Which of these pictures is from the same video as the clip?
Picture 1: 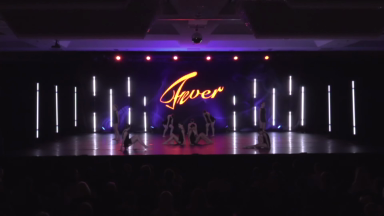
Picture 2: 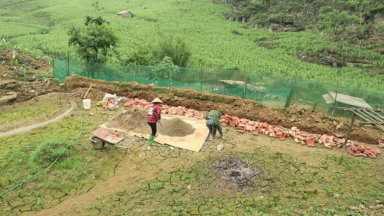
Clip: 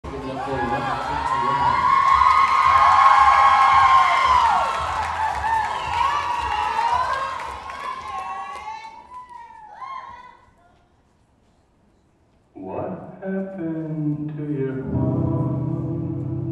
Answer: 1